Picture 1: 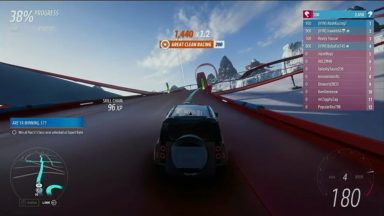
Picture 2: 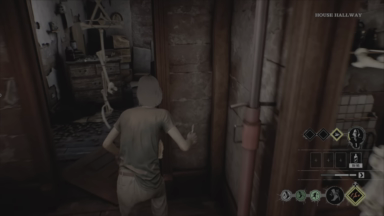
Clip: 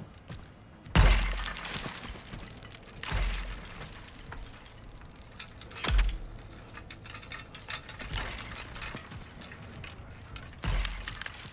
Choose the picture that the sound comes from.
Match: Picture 2